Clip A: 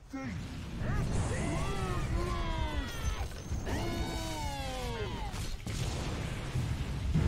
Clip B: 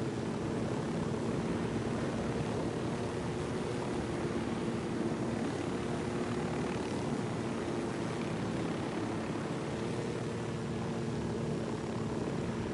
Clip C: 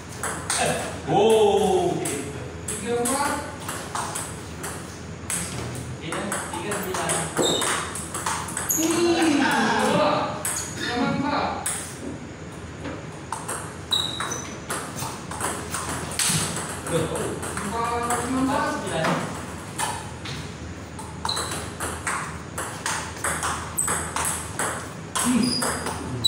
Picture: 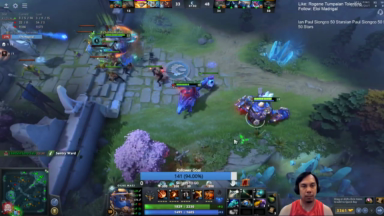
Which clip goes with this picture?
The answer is A